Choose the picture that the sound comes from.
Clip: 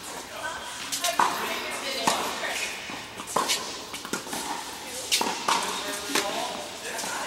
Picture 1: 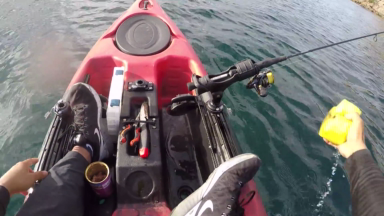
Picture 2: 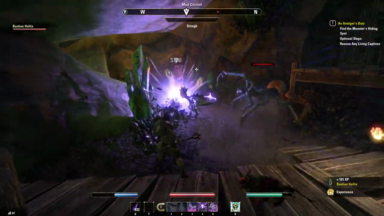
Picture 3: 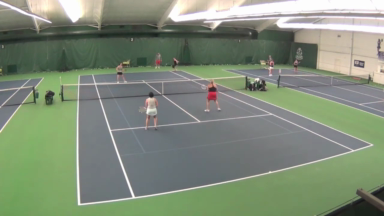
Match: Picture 3